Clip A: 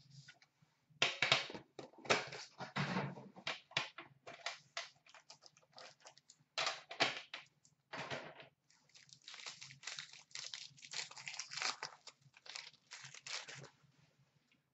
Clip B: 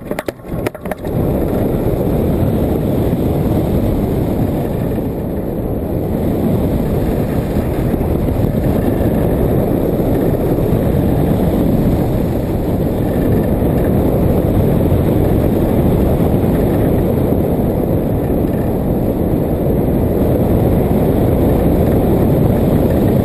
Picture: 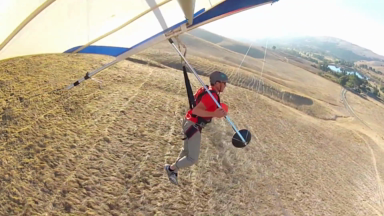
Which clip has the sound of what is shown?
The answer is B